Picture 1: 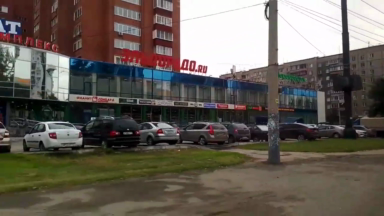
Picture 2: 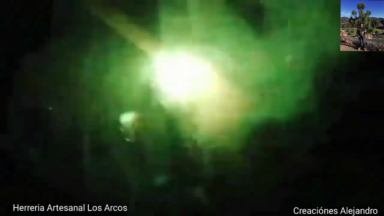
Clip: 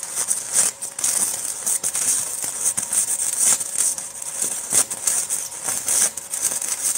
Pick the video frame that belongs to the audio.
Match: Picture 2